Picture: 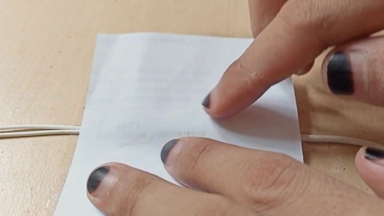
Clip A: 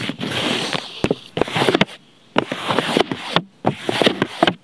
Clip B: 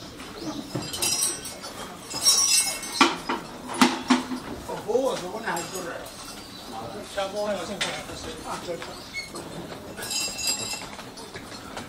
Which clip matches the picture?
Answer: A